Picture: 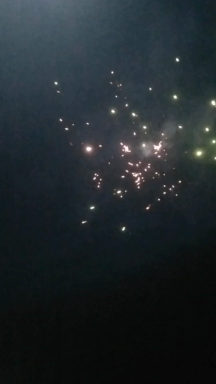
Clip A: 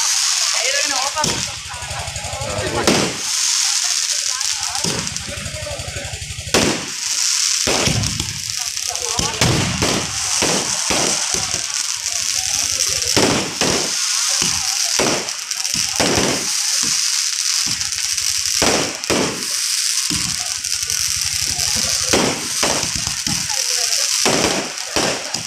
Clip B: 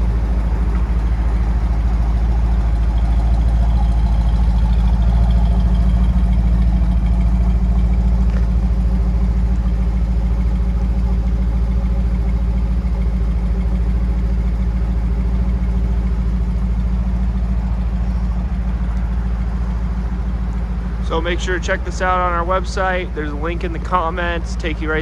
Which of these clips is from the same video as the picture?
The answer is A